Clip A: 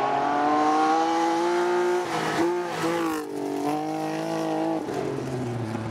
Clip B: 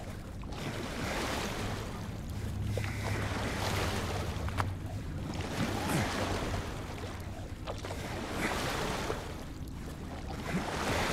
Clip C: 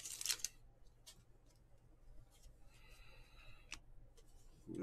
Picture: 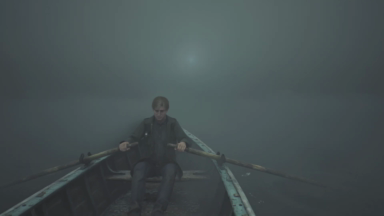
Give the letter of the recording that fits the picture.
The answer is B